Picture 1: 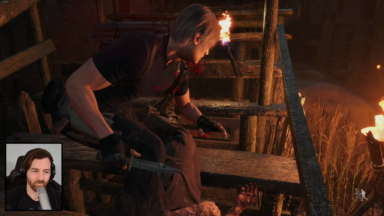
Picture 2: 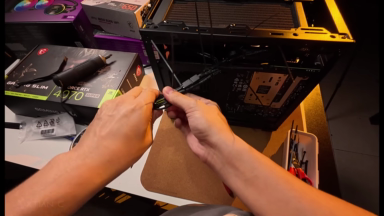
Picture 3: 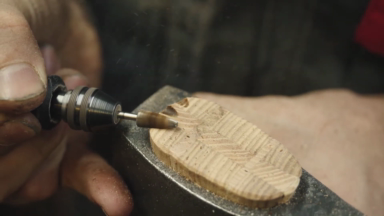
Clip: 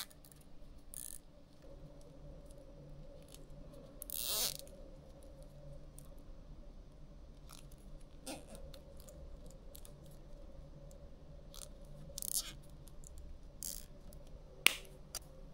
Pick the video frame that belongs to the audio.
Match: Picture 2